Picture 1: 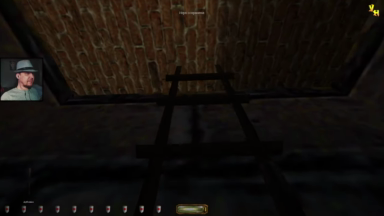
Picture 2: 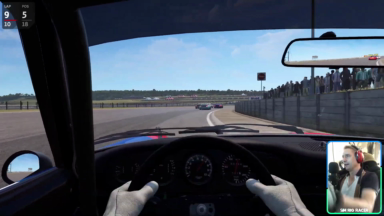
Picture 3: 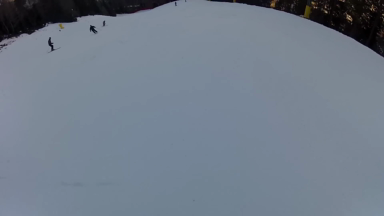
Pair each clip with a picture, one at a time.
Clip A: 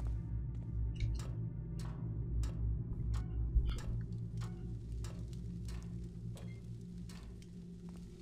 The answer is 1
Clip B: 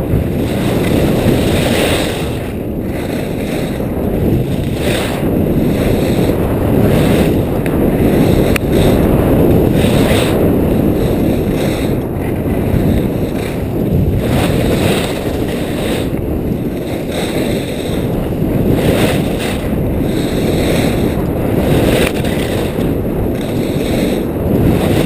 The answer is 3